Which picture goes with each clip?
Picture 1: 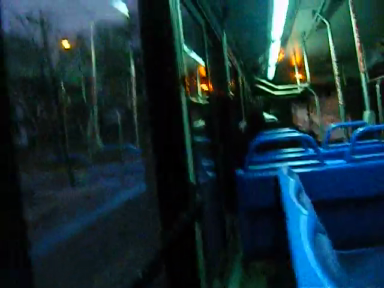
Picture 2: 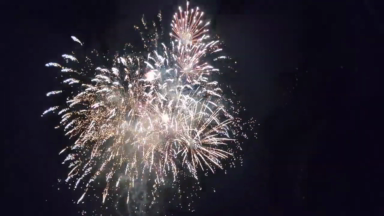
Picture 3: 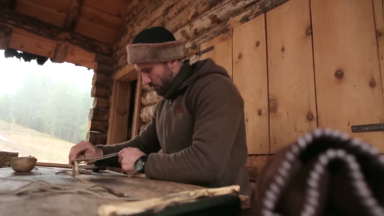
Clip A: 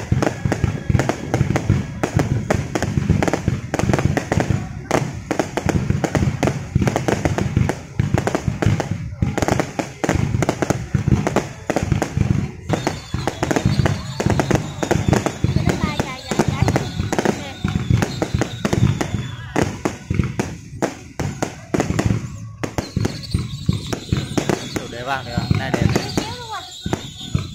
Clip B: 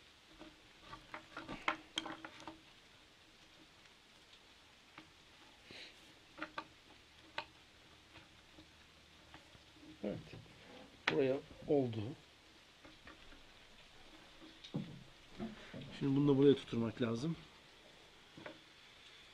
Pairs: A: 2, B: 3